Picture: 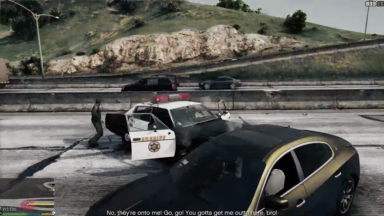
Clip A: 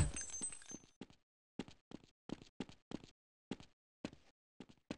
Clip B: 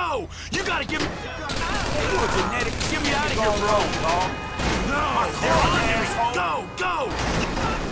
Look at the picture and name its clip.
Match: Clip B